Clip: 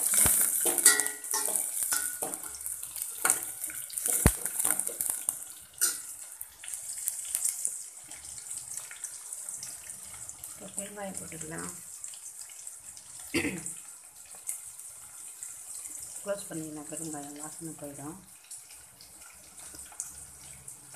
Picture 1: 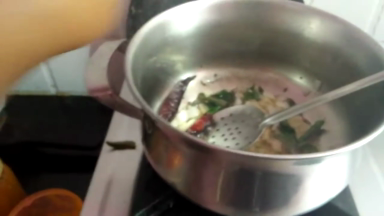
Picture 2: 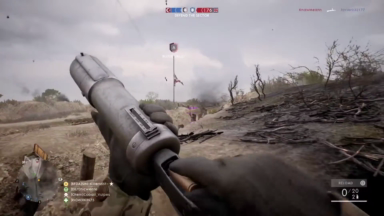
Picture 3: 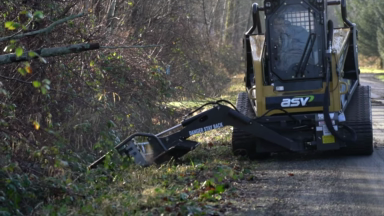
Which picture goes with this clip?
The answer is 1